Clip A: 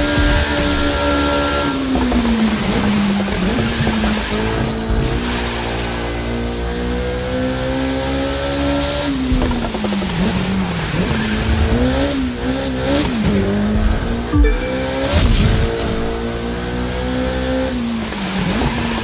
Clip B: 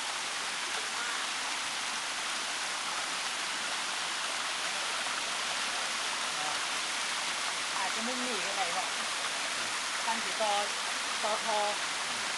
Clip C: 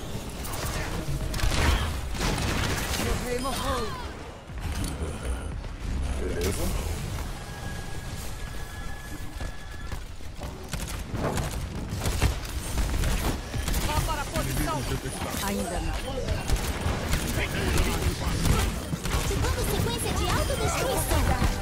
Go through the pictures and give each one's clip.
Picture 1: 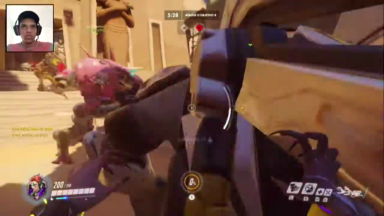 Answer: C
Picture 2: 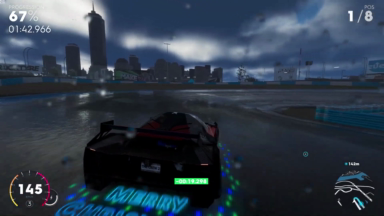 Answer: A